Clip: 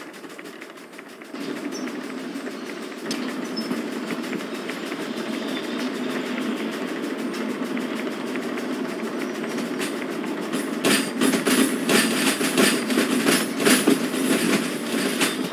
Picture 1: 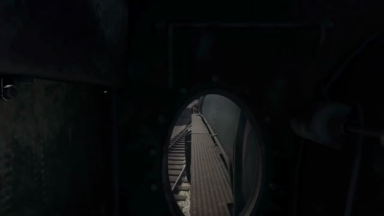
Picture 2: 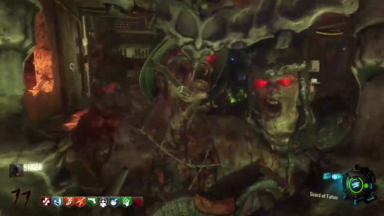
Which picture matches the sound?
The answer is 1